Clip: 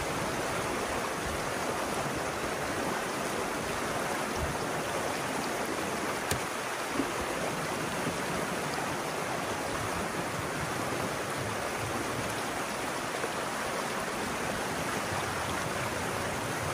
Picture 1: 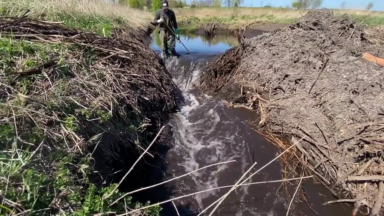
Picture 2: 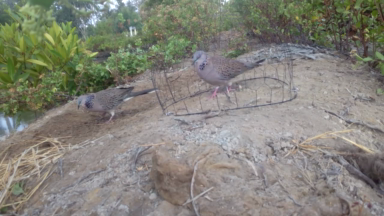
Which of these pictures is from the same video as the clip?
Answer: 1